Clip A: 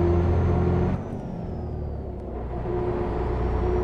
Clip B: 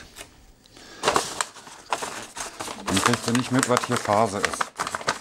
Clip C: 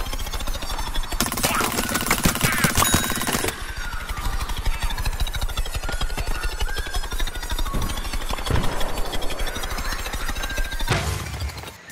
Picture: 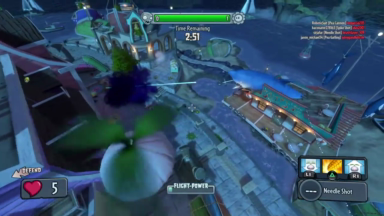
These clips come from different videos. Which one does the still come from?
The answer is C